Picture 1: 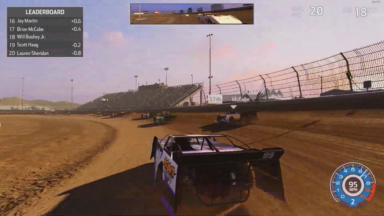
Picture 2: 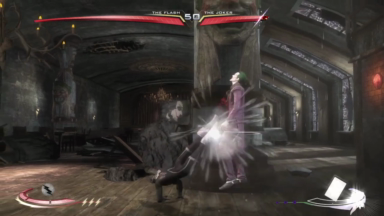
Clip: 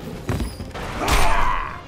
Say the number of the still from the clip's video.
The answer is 2